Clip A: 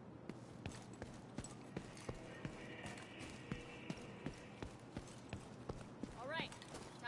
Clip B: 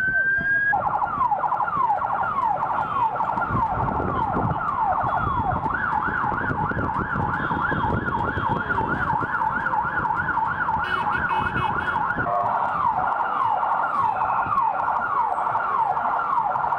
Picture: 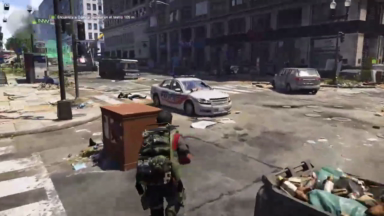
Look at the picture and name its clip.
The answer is A